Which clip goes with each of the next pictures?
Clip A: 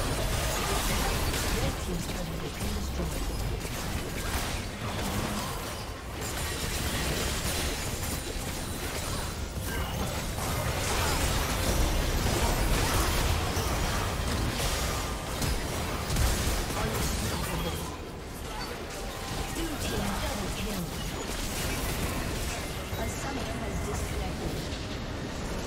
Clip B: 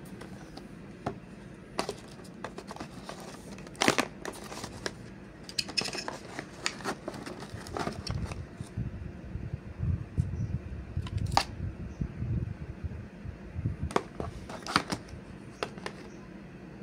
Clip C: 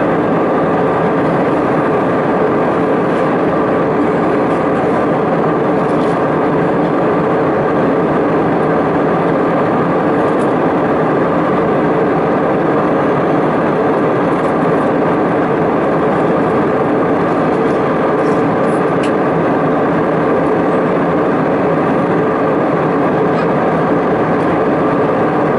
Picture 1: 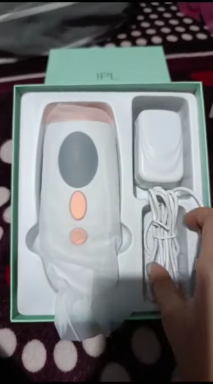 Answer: B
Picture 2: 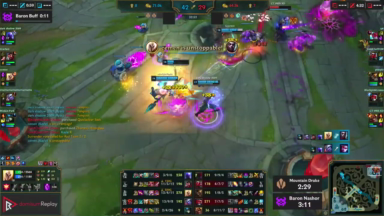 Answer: A